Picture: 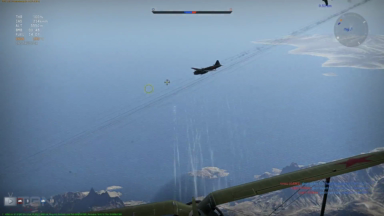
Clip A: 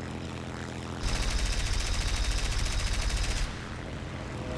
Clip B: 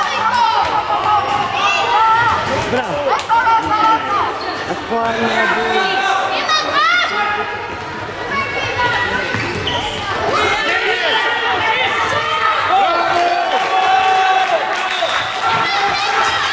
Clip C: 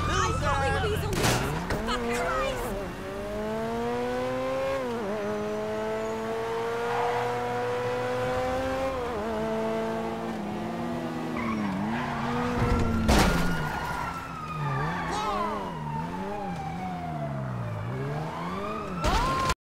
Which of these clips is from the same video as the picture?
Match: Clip A